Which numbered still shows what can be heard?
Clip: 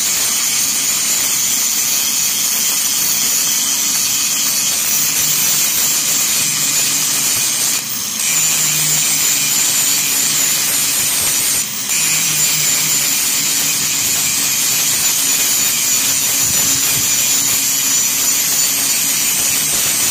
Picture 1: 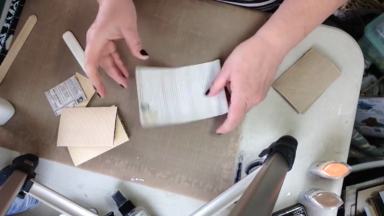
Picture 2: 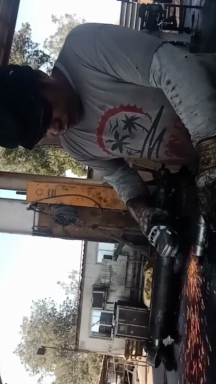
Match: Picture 2